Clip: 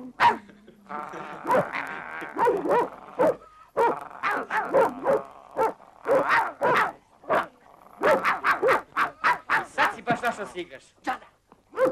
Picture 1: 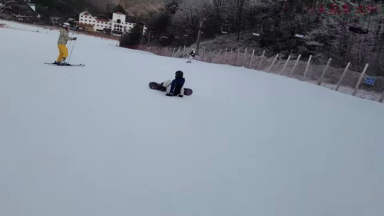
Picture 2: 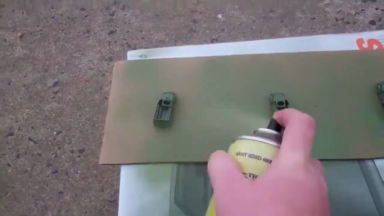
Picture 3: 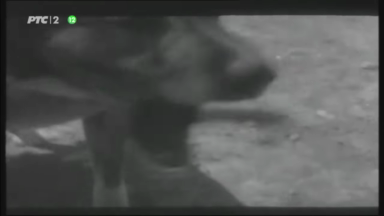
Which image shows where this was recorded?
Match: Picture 3